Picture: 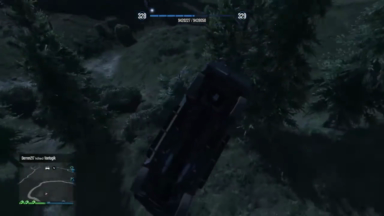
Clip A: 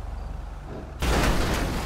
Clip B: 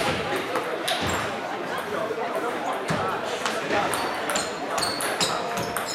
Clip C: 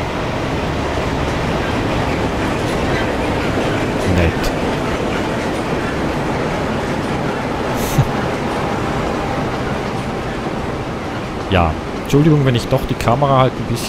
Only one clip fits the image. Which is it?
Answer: A